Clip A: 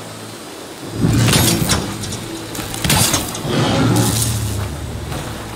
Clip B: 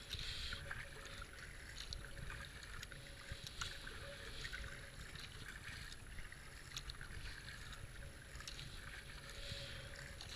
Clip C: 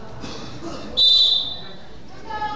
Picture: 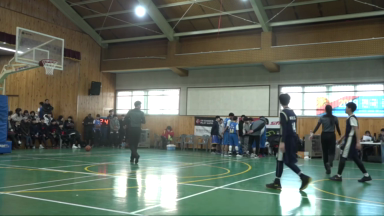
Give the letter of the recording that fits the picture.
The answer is C